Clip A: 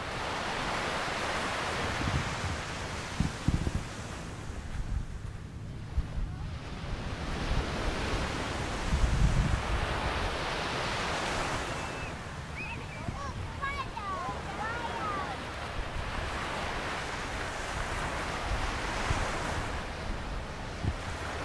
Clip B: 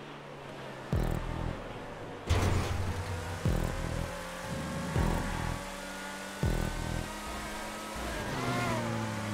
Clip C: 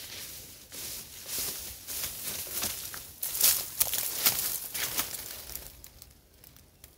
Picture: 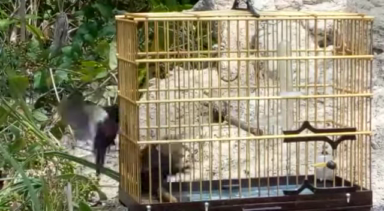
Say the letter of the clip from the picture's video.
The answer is C